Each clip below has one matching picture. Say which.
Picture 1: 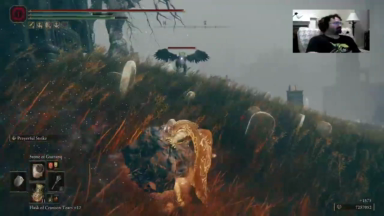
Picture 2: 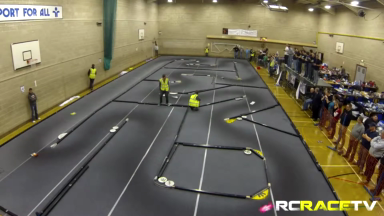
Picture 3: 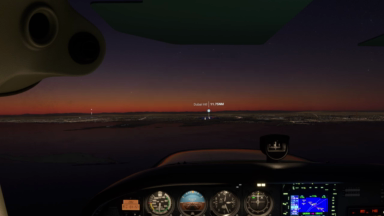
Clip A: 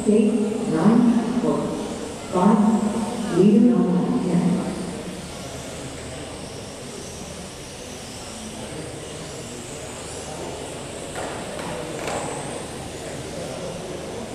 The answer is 2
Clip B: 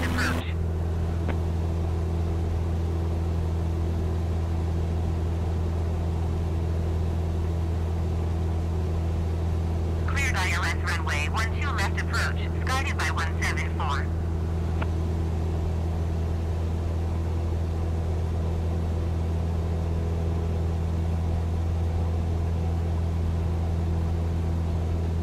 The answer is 3